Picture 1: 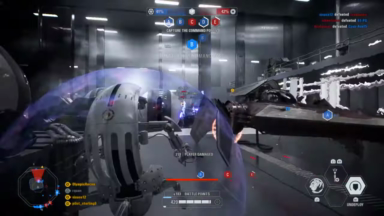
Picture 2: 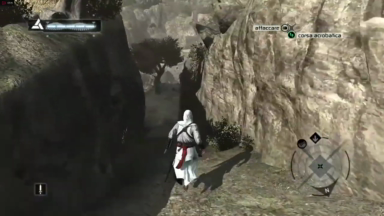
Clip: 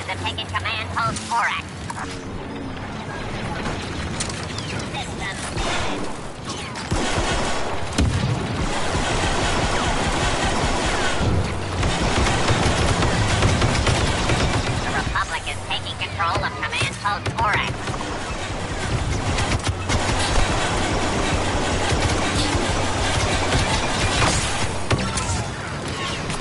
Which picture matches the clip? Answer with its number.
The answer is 1